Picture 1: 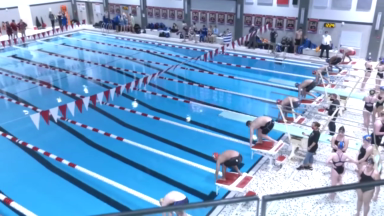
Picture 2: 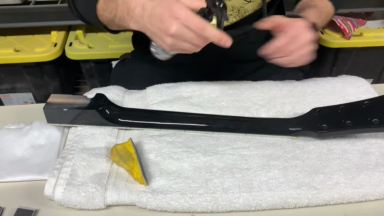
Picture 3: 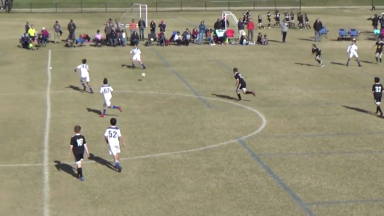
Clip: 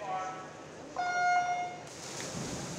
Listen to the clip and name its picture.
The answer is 1